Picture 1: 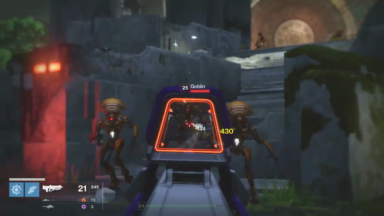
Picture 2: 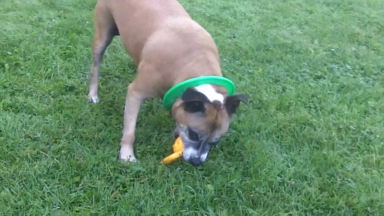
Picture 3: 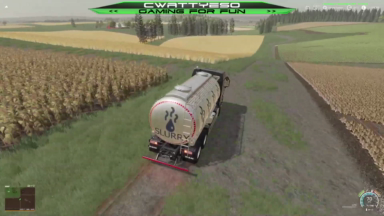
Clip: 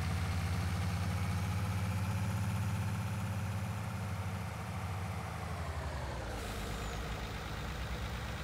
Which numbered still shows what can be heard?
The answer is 3